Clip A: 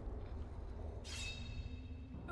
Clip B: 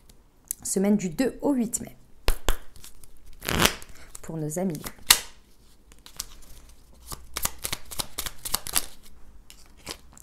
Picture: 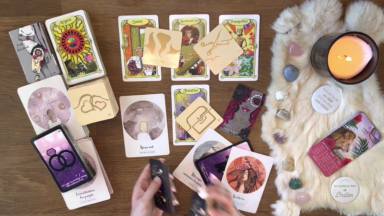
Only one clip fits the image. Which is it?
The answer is B